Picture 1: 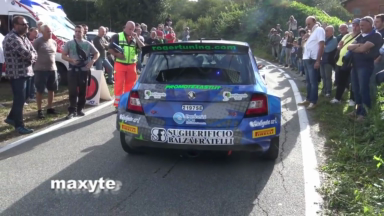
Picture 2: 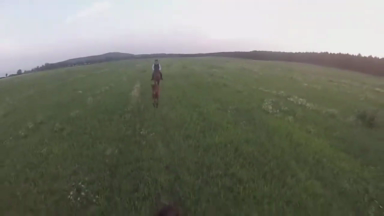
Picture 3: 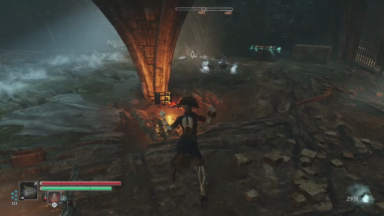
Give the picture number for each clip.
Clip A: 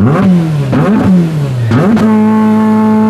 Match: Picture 1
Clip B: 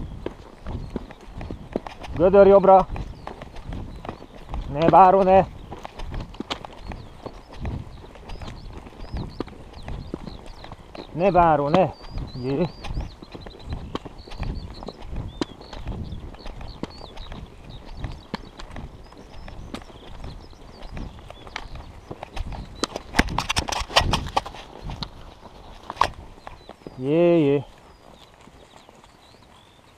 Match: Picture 2